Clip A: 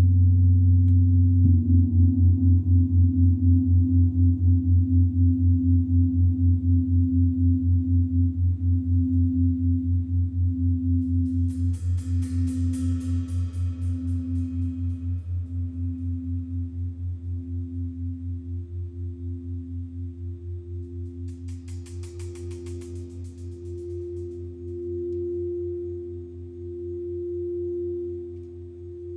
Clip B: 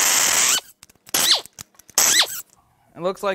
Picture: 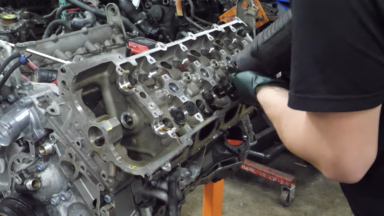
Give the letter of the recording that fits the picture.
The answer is B